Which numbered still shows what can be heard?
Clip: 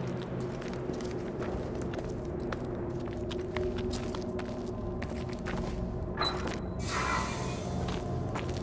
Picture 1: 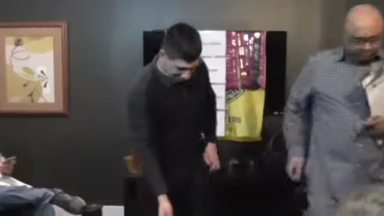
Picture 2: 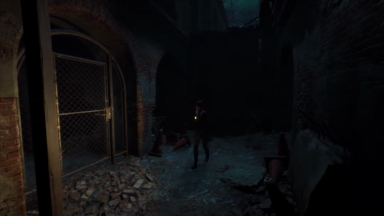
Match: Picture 2